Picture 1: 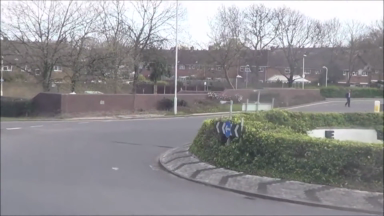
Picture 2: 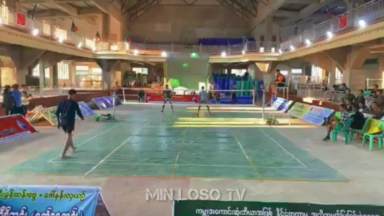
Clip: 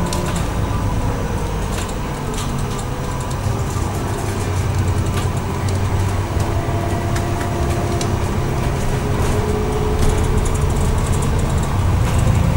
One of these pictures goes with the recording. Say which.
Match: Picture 1